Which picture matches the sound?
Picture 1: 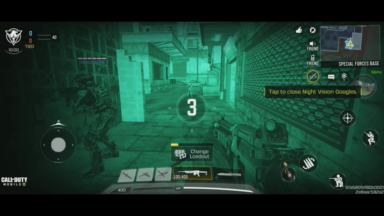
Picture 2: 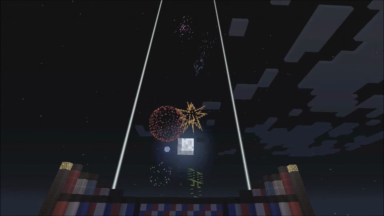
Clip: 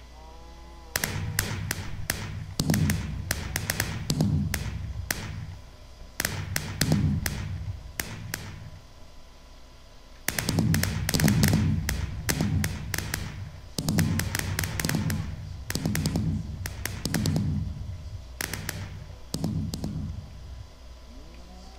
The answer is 2